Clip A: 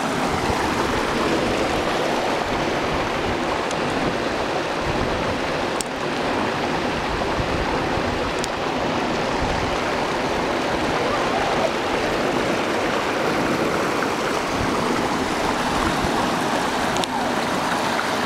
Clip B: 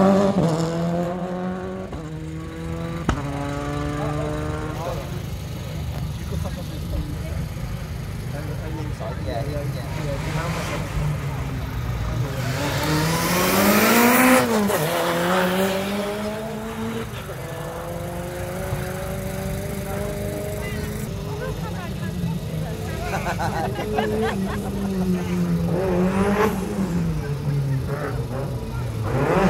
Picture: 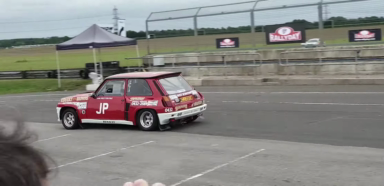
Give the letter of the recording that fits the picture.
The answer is B